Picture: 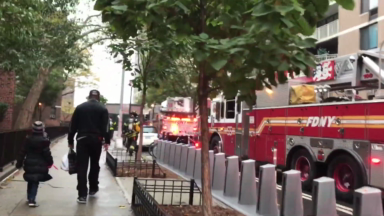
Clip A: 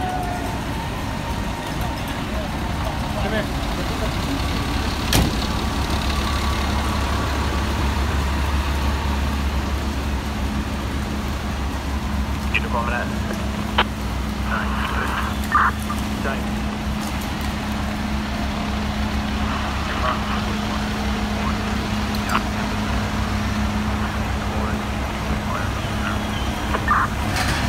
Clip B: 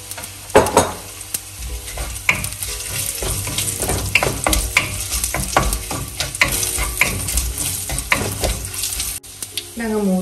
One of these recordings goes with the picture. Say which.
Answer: A